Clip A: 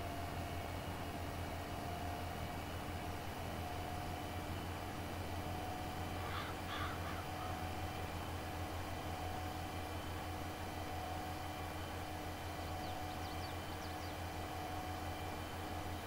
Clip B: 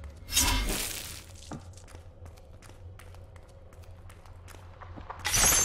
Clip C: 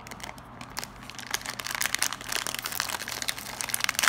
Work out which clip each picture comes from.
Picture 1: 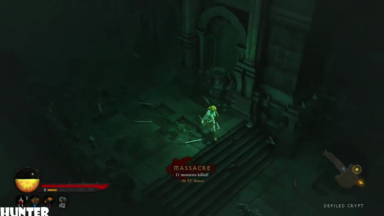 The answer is B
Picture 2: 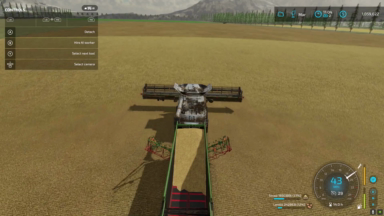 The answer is A